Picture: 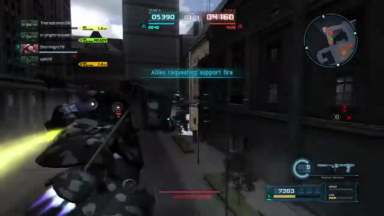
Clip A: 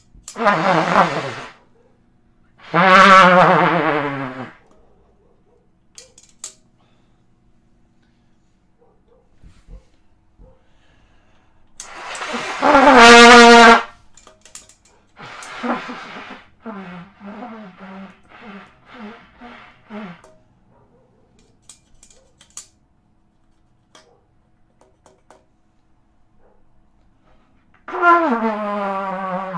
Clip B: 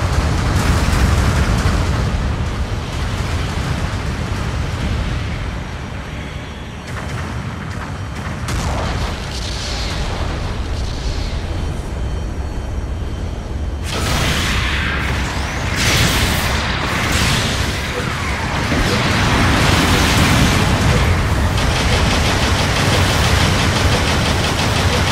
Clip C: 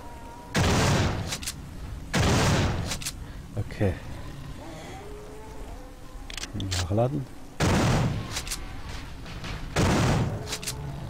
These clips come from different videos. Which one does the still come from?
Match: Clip B